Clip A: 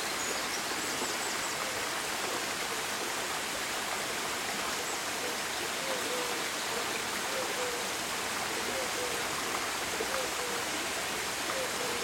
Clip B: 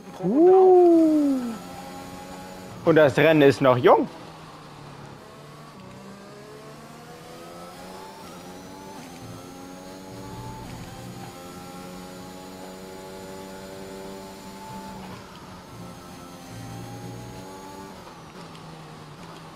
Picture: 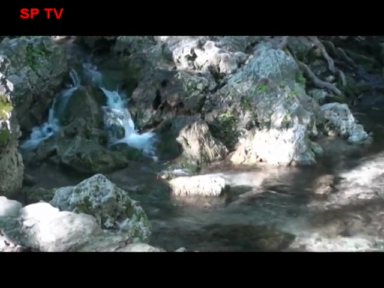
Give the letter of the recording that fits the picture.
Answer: A